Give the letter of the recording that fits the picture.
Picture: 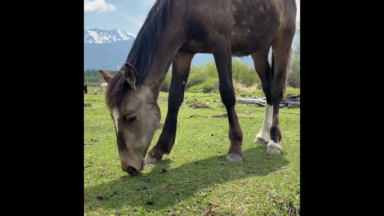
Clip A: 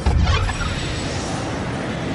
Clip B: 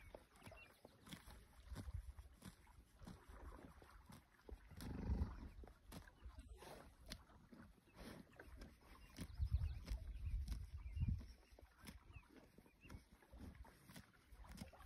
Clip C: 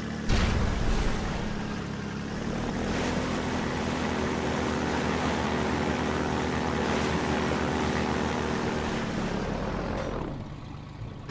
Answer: B